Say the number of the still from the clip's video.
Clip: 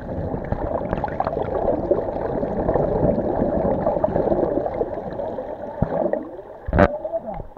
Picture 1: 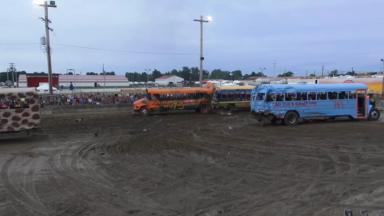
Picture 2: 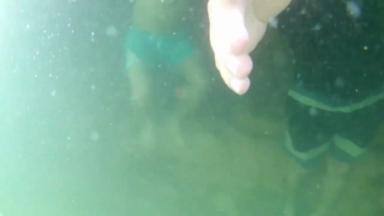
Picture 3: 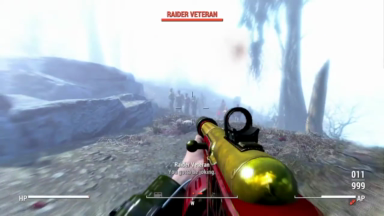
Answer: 2